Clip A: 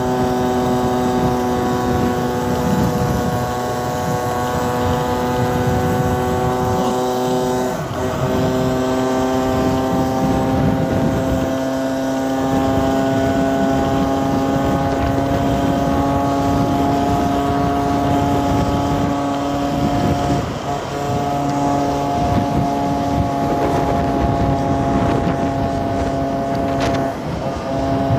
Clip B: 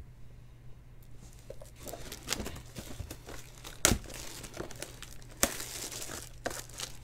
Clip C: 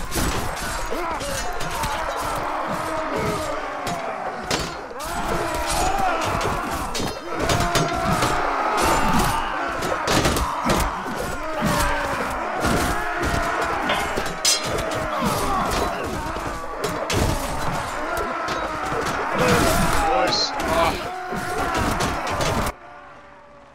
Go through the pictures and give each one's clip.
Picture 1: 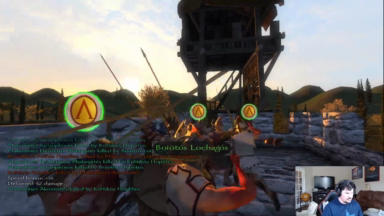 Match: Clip C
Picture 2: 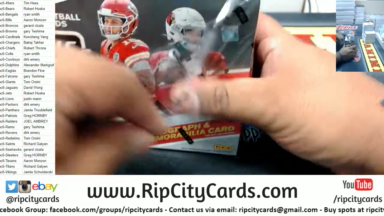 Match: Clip B